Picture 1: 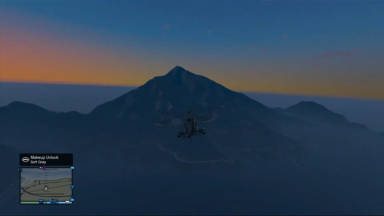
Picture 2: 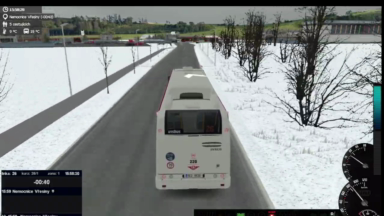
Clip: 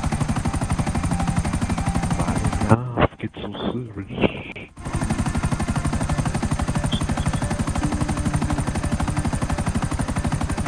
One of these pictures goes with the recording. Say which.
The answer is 1